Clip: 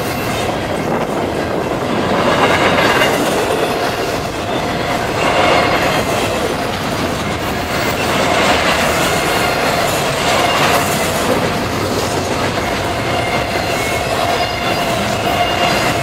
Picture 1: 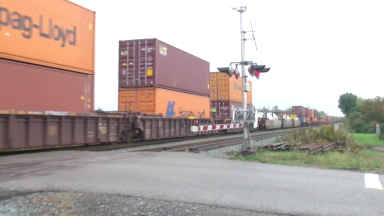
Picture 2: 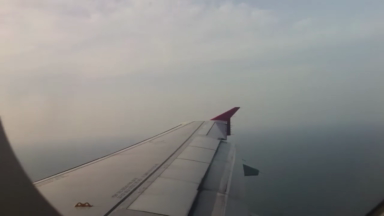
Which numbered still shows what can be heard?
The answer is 1